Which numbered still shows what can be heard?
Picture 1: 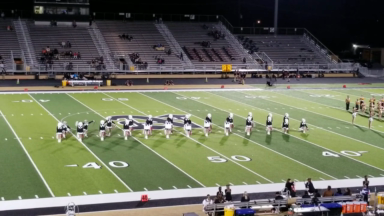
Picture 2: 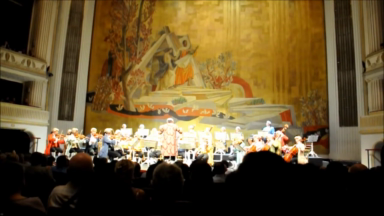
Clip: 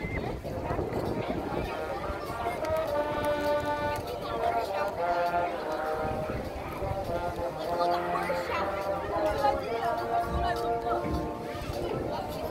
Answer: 1